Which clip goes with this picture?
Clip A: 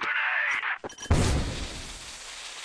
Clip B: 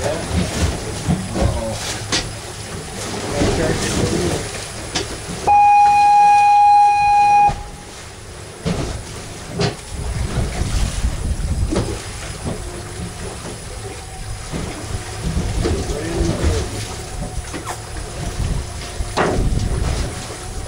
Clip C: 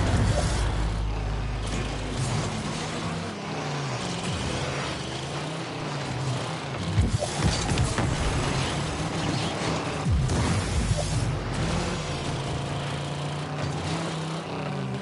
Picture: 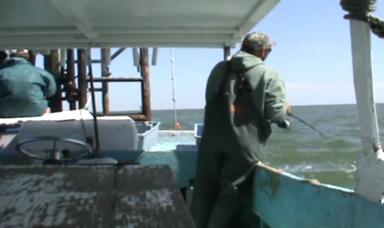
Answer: B